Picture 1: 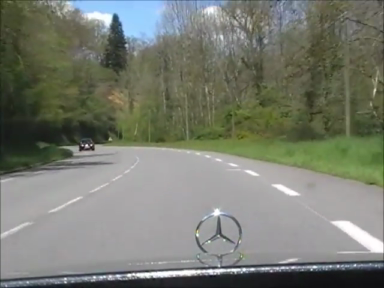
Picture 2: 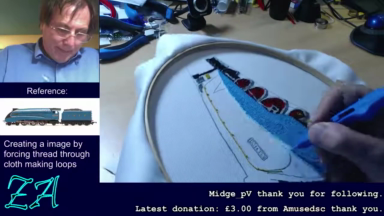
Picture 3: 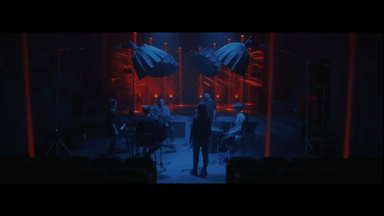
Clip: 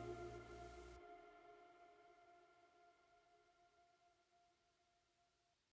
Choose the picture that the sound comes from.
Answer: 3